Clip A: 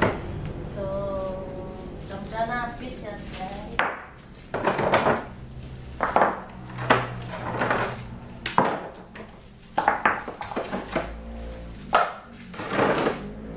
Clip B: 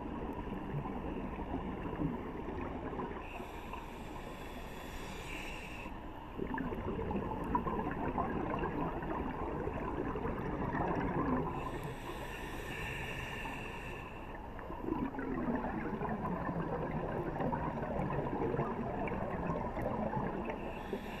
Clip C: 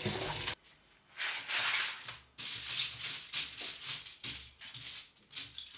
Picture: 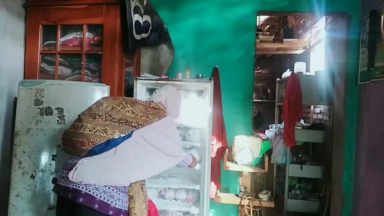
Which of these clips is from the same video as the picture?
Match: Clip A